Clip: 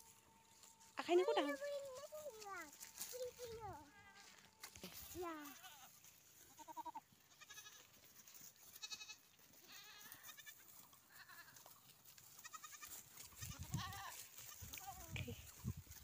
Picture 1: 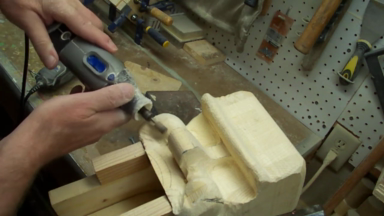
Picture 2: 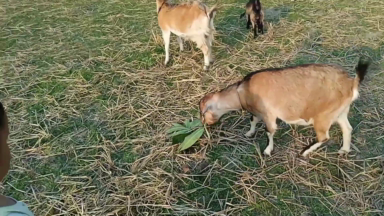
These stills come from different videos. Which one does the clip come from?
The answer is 2